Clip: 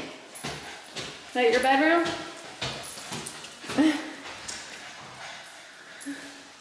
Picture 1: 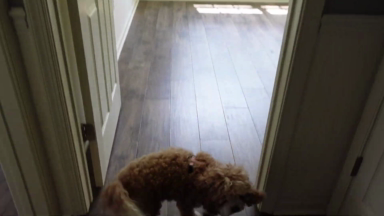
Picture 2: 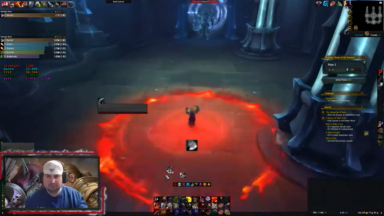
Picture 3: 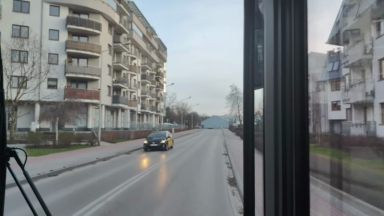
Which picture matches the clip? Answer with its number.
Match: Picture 1